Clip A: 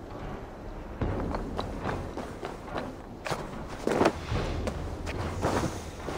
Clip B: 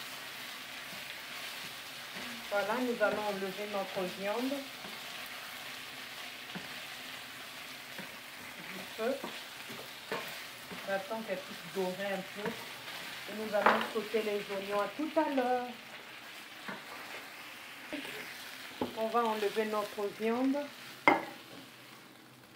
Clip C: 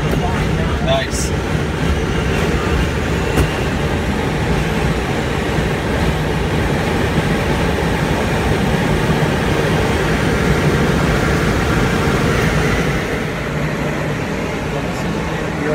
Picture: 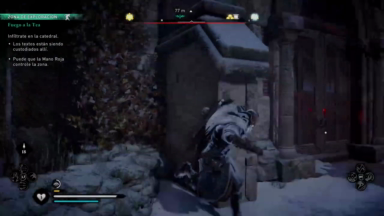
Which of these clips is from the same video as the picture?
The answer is A